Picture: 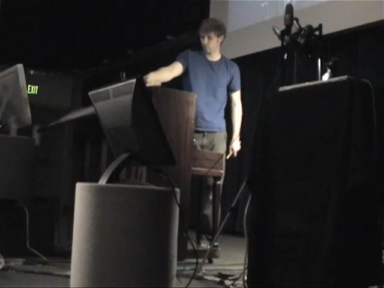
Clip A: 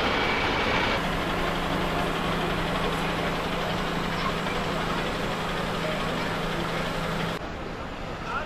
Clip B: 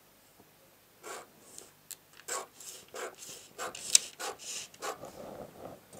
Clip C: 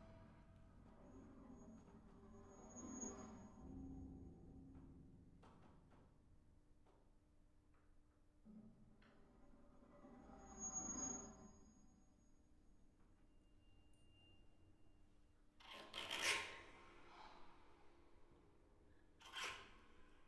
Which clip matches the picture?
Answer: C